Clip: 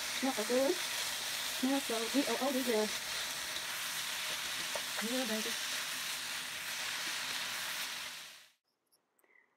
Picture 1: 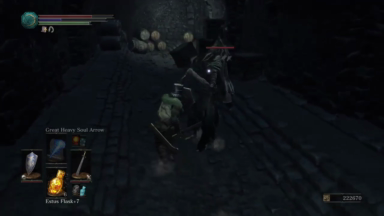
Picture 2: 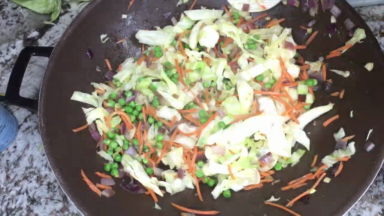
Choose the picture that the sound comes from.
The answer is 2